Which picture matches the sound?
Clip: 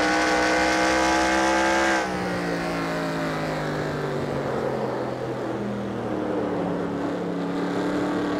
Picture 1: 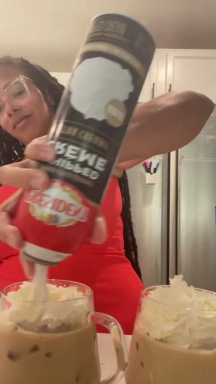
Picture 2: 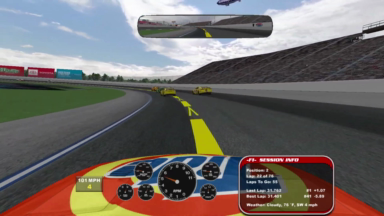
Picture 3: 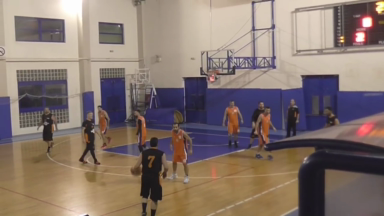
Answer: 2